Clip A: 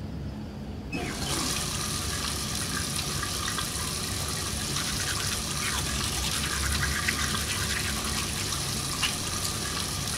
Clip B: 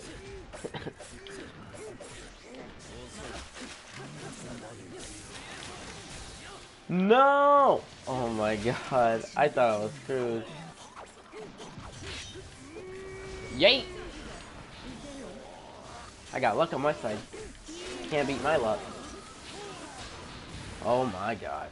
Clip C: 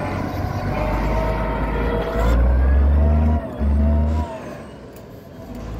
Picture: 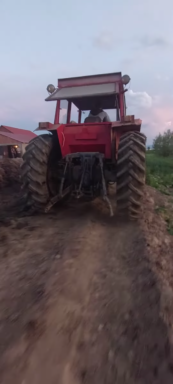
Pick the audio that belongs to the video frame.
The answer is C